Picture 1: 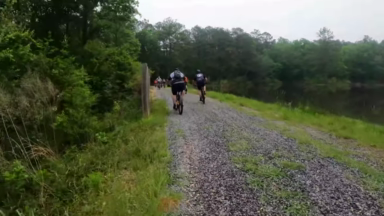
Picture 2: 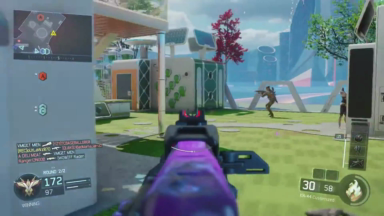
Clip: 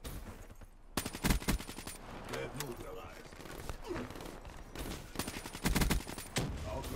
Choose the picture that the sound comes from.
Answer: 2